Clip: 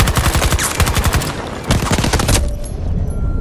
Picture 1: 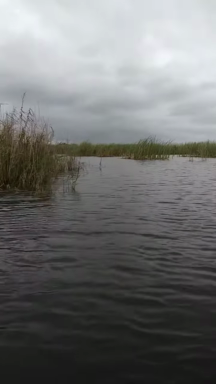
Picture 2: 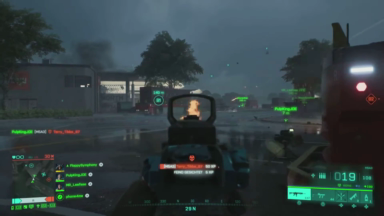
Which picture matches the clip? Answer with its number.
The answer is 2